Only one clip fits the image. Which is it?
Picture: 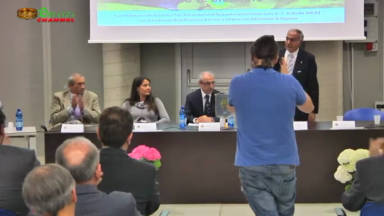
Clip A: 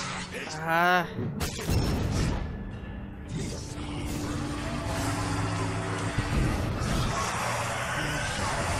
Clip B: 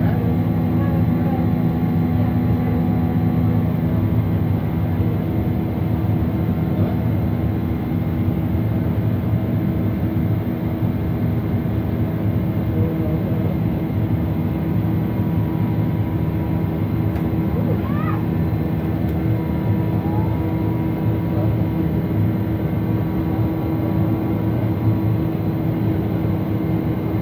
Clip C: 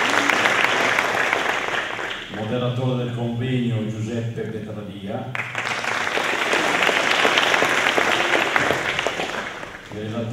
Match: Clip C